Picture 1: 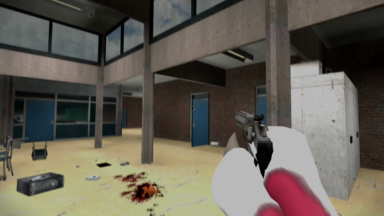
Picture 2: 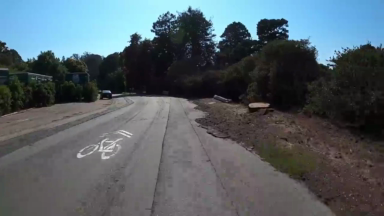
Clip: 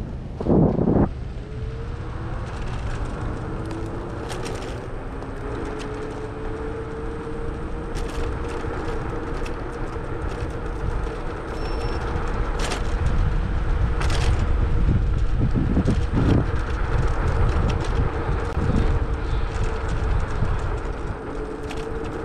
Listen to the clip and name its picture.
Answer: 2